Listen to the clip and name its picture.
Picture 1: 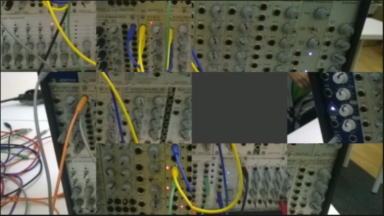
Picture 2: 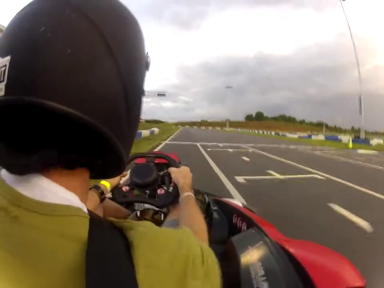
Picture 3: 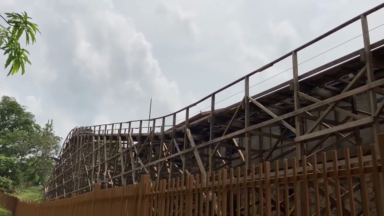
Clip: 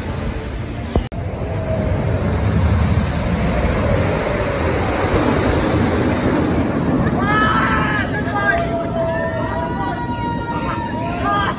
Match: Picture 3